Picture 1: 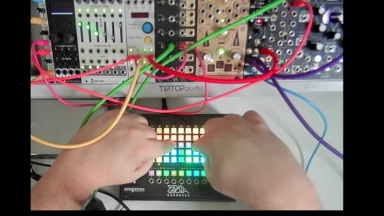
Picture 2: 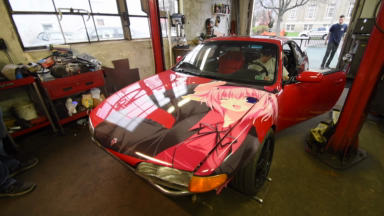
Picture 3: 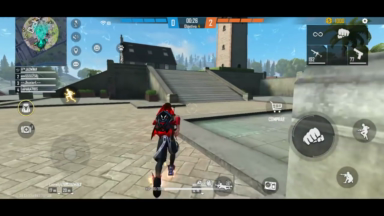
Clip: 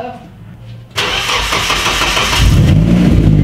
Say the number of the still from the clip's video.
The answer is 2